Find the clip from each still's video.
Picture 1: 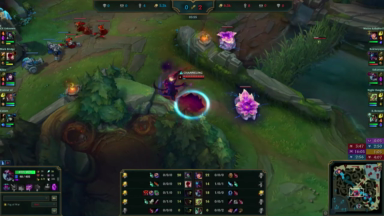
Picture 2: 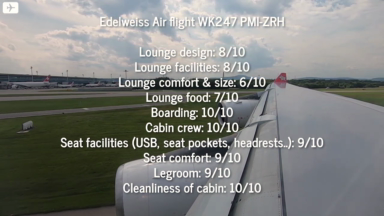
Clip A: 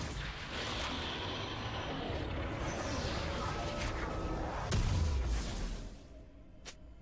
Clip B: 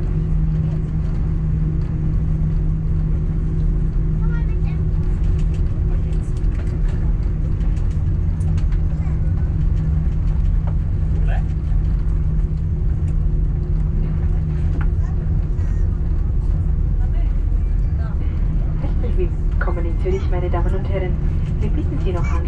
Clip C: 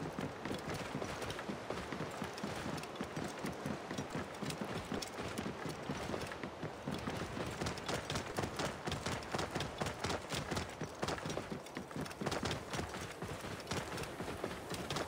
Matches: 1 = A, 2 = B